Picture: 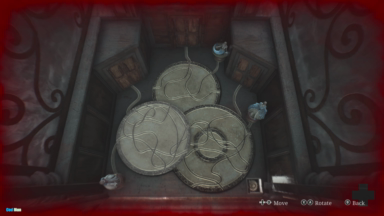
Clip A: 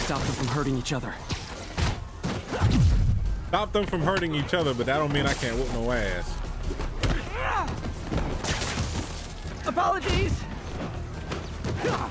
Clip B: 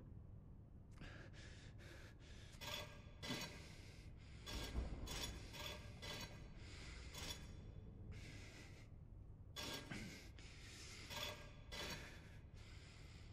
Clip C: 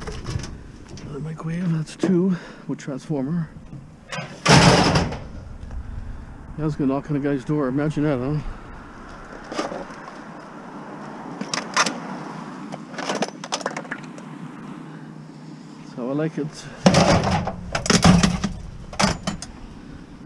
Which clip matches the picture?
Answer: B